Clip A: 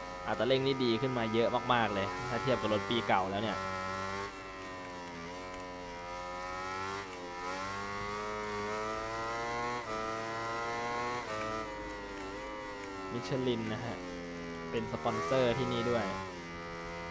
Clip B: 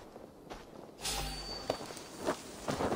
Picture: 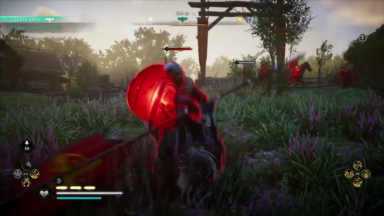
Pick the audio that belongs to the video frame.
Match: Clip B